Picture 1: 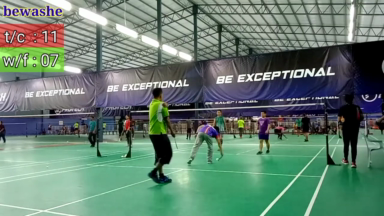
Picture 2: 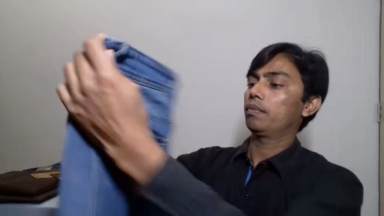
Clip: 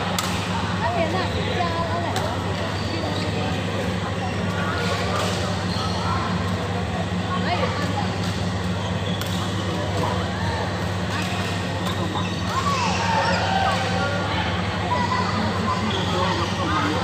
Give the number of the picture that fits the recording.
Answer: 1